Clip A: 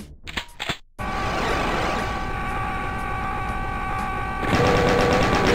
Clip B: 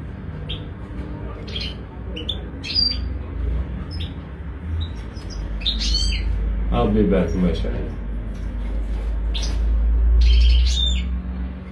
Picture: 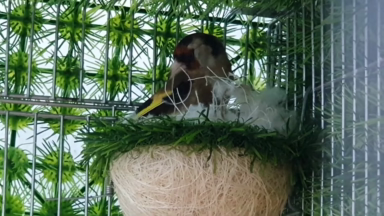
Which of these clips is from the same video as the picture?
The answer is B